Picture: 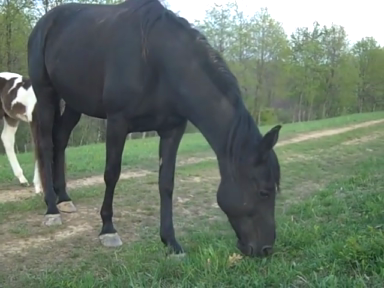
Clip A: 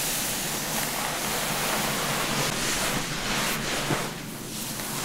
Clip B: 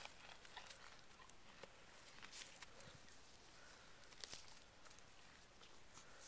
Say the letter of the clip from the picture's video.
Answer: B